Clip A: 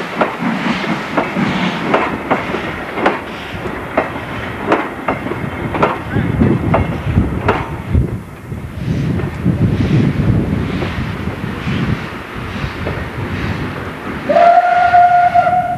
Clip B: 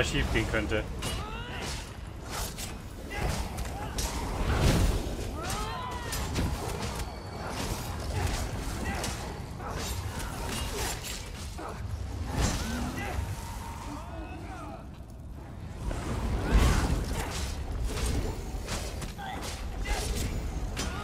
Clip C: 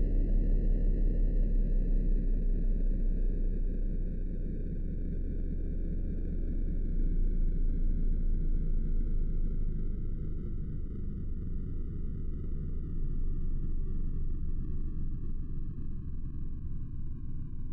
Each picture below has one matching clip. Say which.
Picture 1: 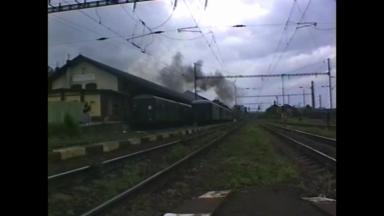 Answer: A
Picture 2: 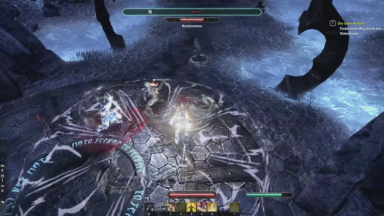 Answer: B